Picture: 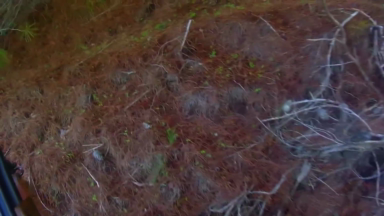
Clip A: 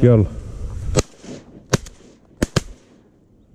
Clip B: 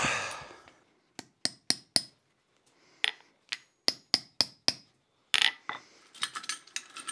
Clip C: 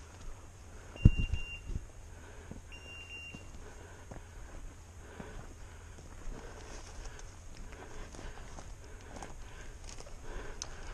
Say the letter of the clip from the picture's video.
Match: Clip C